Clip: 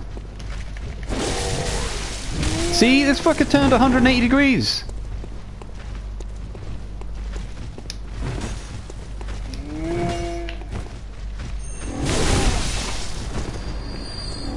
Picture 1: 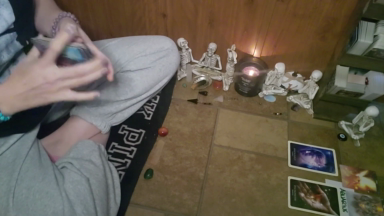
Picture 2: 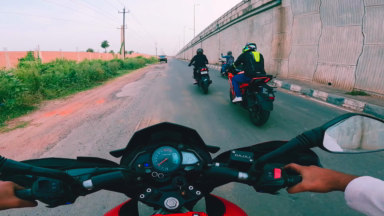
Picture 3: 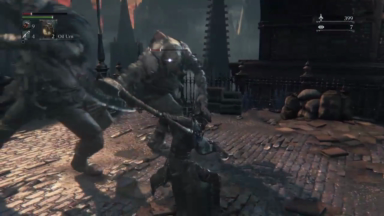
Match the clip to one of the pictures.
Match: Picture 3